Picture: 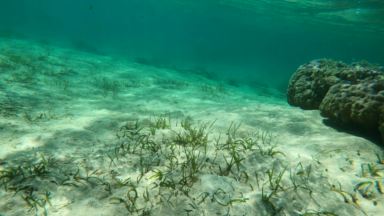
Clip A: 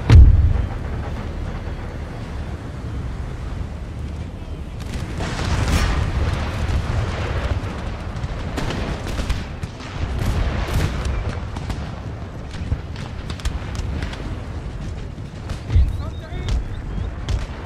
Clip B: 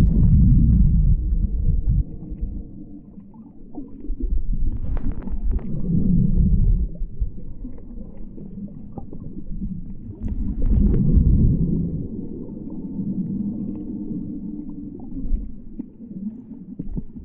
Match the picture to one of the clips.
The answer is B